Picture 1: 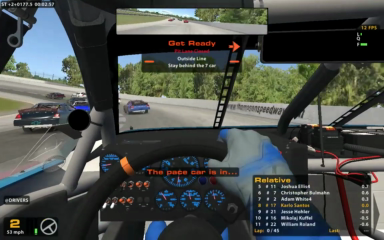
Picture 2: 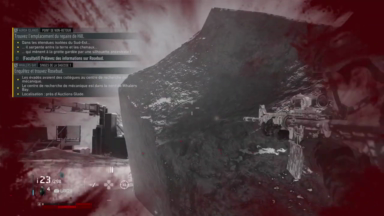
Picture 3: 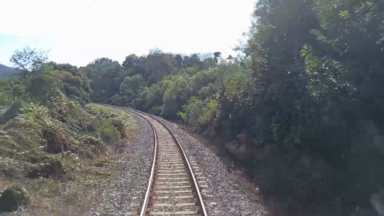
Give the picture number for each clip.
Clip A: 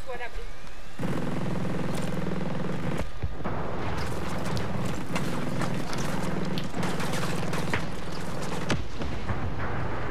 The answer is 2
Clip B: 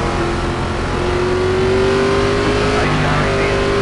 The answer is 1